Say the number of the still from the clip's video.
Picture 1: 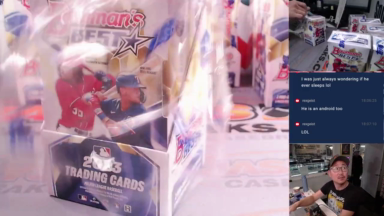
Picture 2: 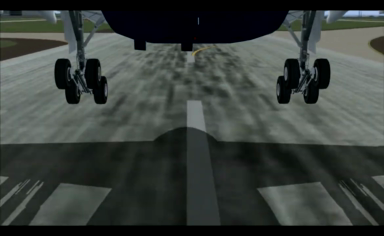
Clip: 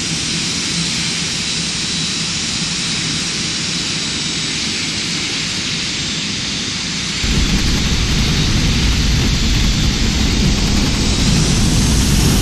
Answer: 2